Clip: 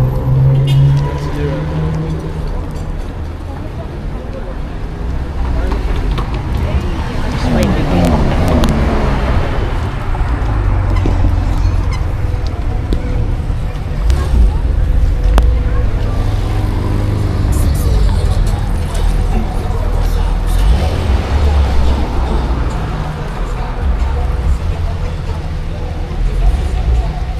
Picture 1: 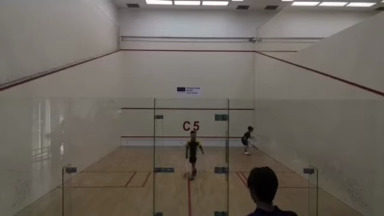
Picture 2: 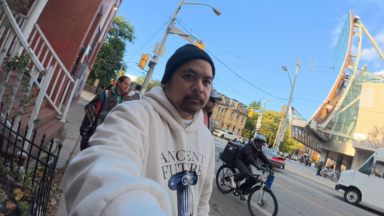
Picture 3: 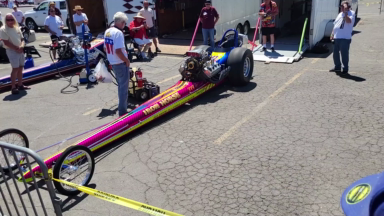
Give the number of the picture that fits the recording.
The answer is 2